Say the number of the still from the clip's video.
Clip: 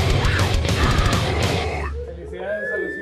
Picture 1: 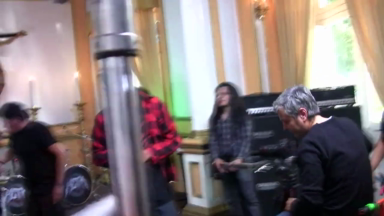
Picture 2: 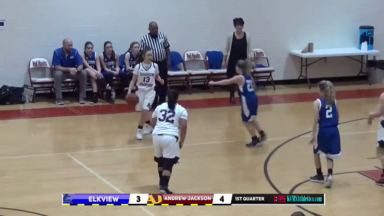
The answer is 1